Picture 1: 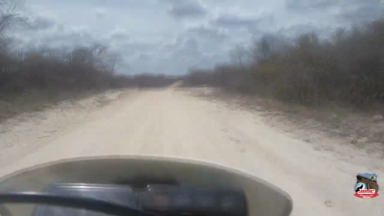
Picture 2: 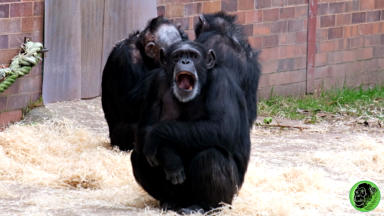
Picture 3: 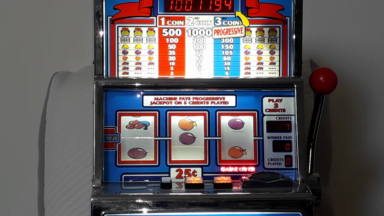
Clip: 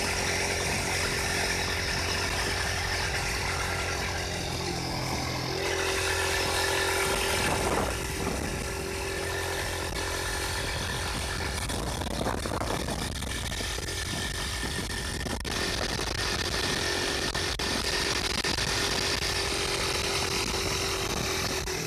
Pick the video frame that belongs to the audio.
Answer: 1